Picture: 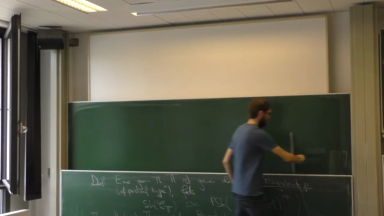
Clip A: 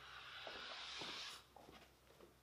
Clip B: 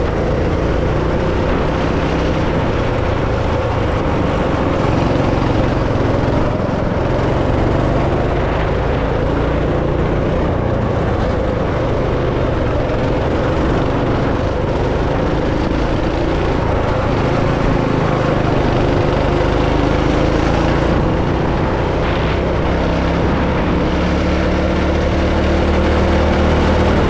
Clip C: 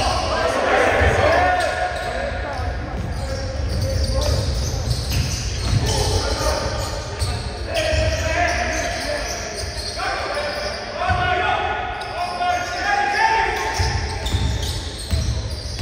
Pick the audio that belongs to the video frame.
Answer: A